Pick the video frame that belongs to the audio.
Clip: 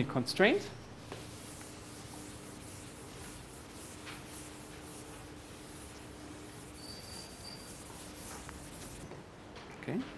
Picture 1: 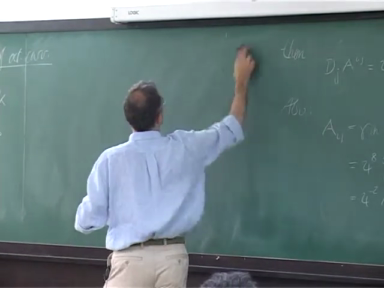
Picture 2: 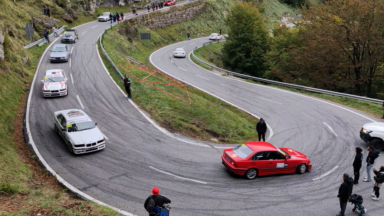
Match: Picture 1